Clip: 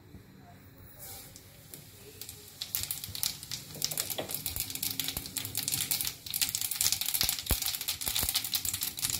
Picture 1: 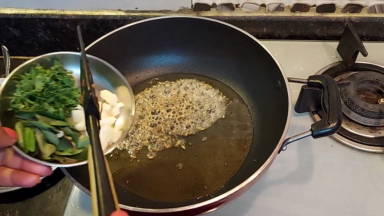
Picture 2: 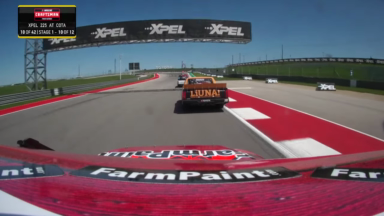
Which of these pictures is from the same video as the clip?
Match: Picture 1